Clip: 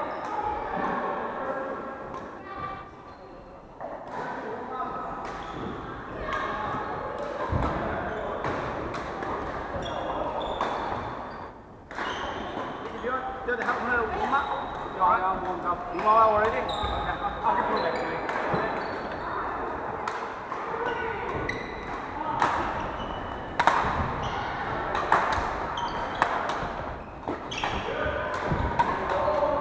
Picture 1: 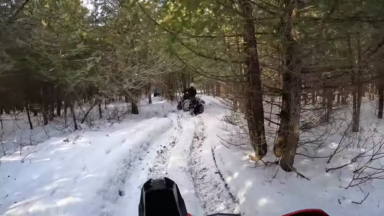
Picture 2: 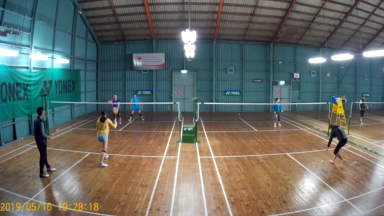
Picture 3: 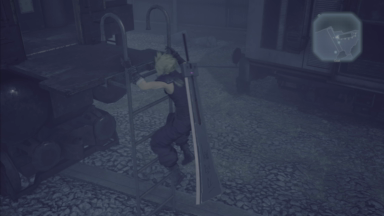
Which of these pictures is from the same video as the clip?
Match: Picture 2